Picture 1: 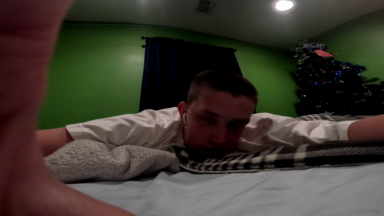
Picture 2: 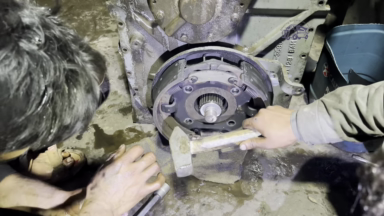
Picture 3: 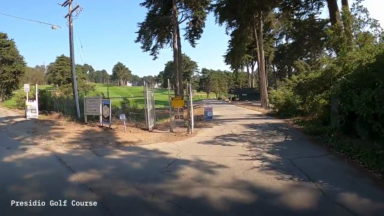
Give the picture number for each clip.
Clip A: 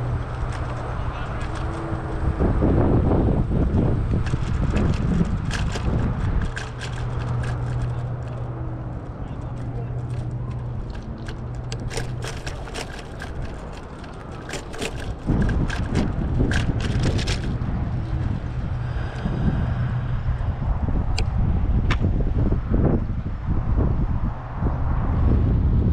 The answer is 3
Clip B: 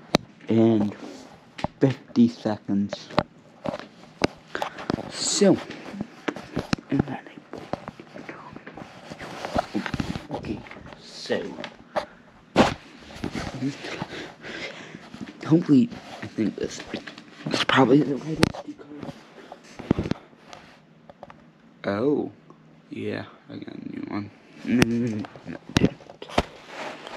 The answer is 1